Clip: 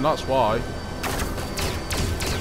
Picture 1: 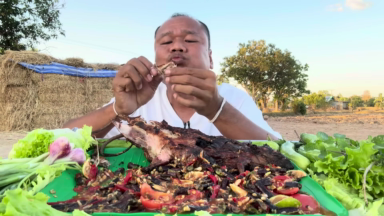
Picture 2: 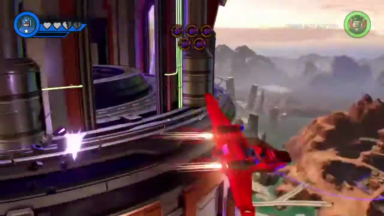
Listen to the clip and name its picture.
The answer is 2